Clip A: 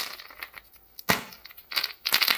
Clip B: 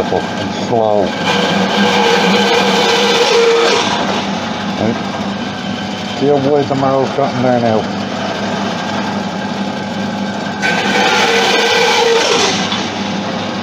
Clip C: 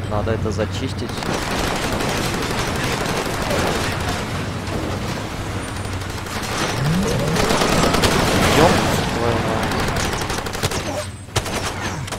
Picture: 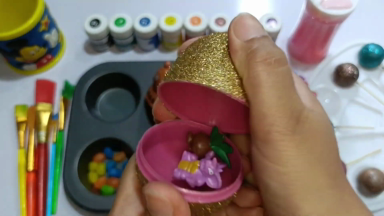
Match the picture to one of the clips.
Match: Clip A